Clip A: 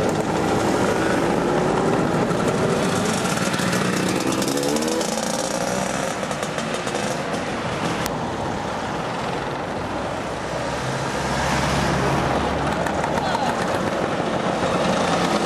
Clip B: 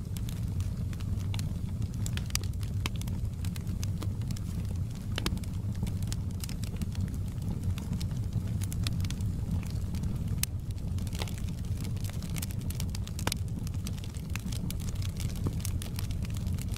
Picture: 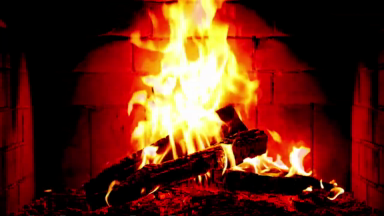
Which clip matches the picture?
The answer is B